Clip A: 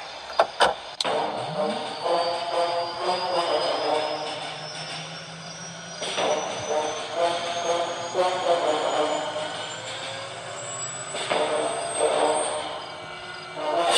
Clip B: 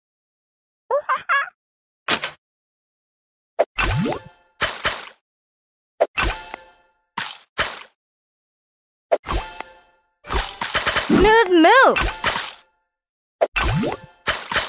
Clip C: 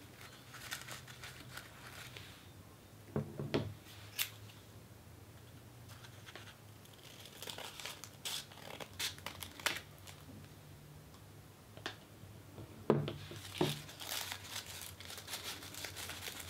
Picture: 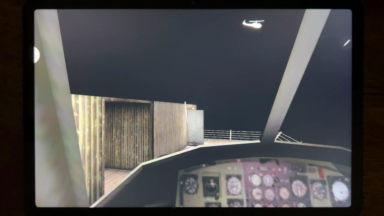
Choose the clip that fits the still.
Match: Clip A